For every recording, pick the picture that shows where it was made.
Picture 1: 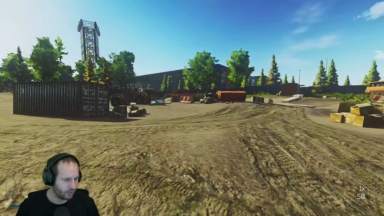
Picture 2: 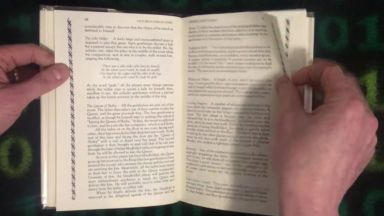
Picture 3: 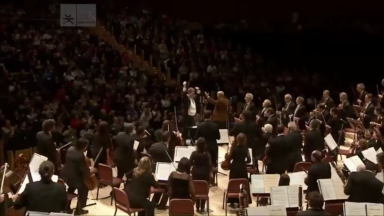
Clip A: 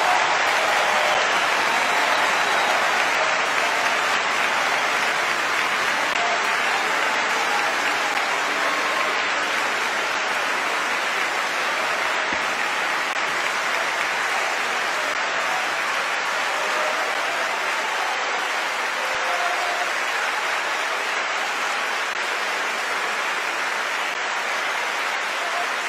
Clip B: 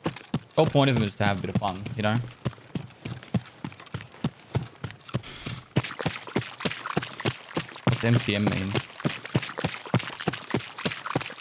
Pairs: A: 3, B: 1